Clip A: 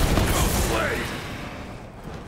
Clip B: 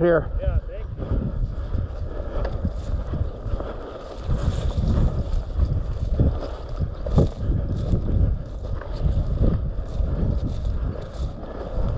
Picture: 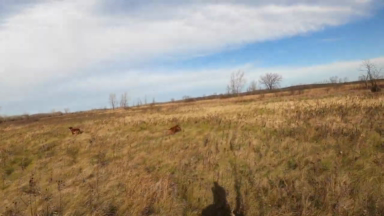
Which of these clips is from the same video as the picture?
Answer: B